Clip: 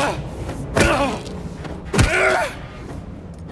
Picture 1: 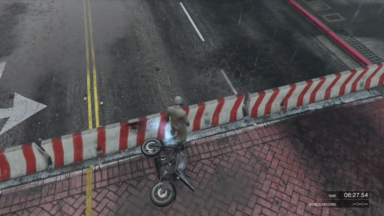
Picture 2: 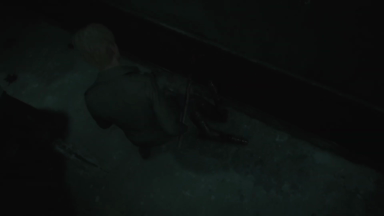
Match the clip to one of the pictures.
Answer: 2